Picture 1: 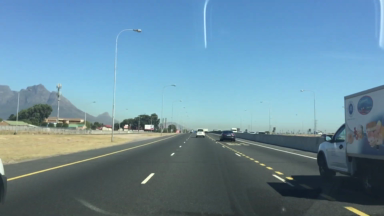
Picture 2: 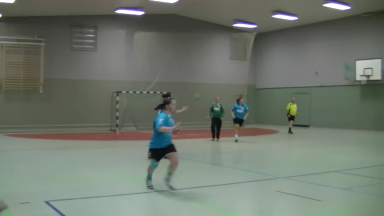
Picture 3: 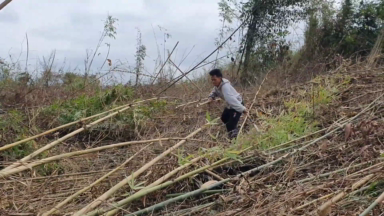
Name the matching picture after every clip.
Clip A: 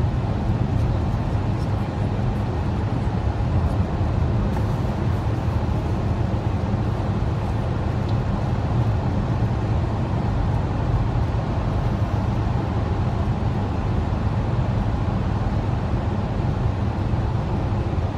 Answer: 1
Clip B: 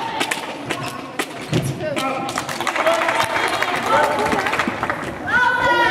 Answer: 2